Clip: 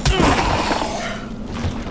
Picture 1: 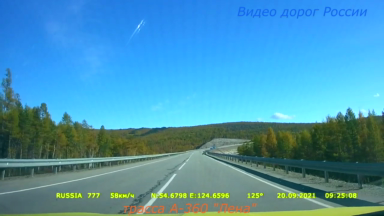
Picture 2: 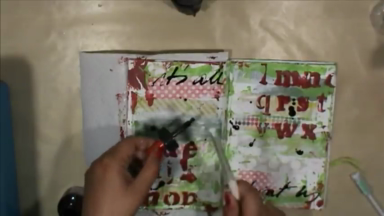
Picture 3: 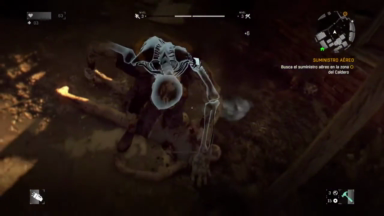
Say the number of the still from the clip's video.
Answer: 3